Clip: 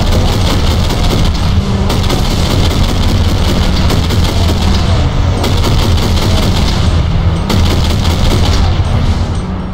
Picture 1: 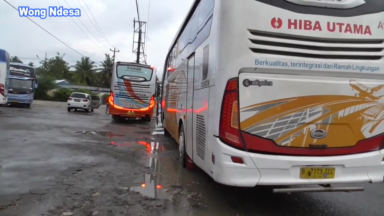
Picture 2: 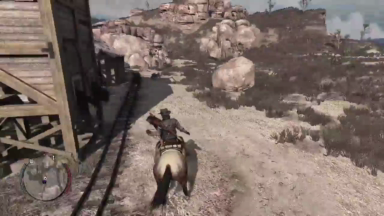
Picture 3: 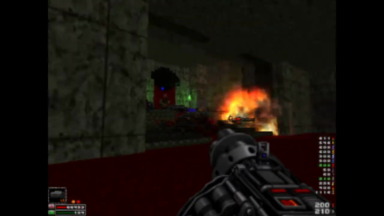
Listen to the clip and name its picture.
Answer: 3